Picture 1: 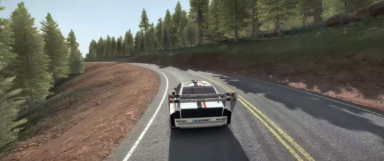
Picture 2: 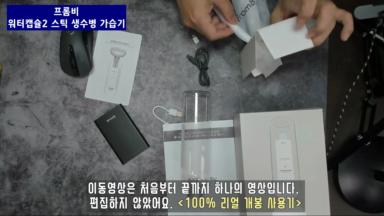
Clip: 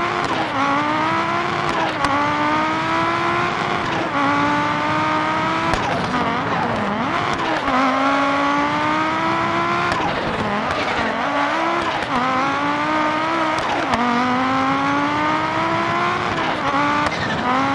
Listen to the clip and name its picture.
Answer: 1